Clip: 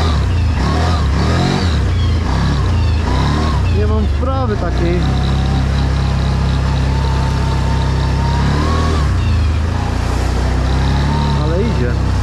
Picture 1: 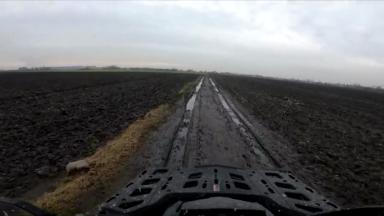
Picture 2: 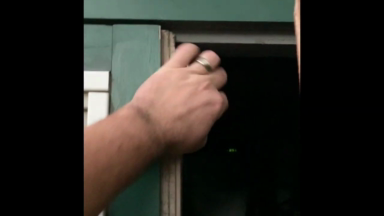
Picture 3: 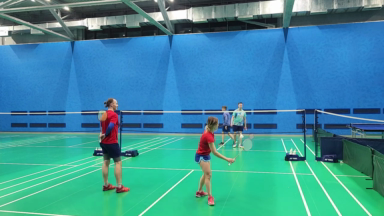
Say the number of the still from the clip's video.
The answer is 1